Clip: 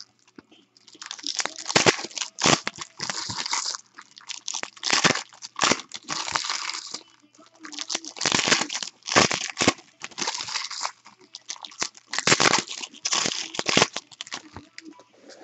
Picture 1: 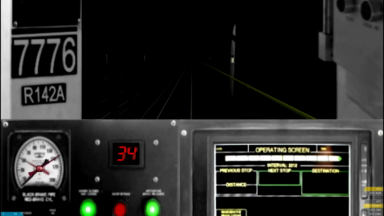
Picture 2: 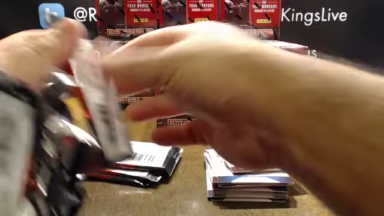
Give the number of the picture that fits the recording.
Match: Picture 2